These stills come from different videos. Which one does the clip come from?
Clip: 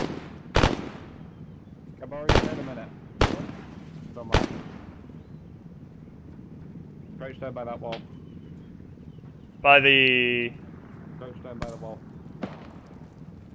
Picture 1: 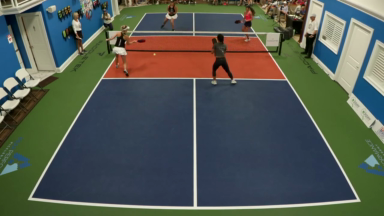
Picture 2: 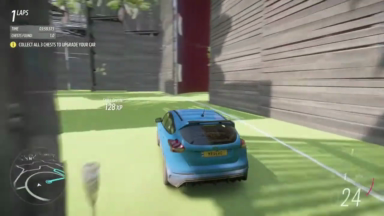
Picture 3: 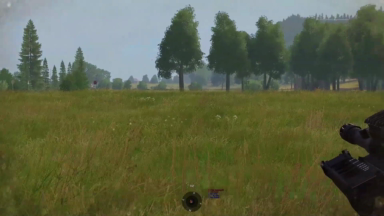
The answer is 3